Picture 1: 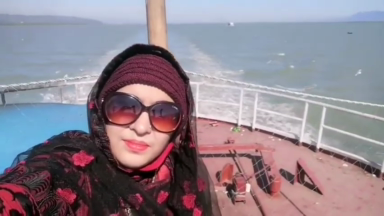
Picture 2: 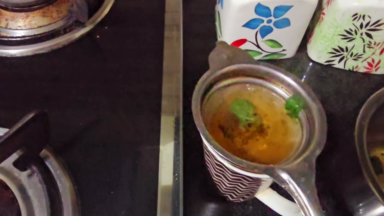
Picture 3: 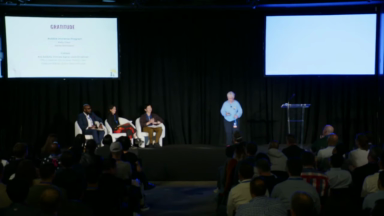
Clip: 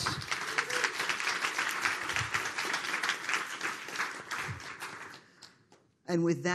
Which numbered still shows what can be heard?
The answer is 3